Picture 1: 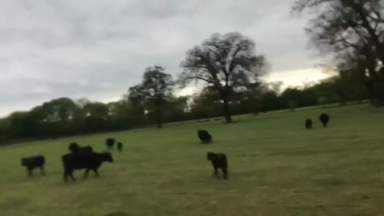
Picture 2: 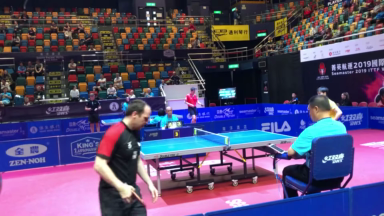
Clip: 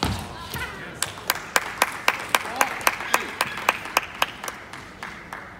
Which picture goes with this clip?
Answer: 2